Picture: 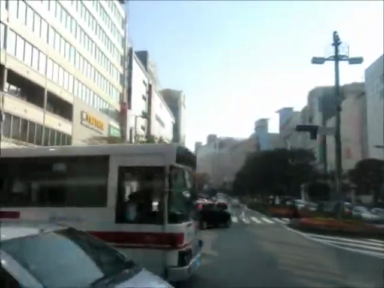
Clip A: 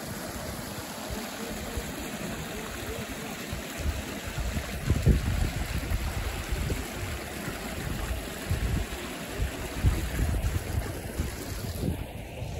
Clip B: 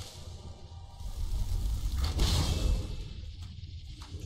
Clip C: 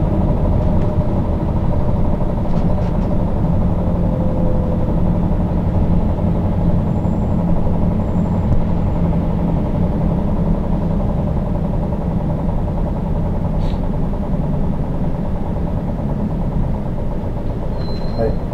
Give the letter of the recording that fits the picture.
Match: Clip C